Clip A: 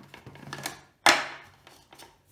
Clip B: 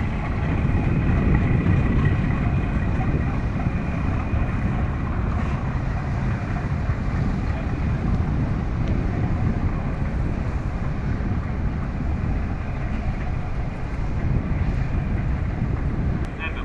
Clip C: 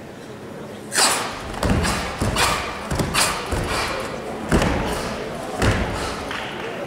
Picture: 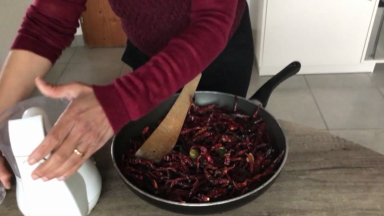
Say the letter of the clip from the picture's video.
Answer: A